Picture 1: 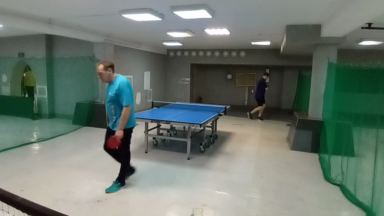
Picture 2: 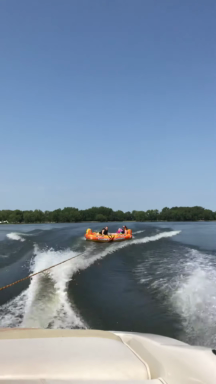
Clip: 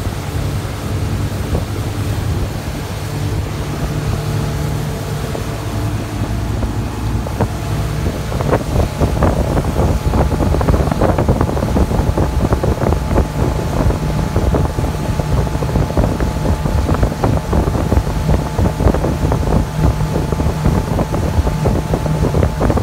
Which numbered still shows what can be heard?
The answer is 2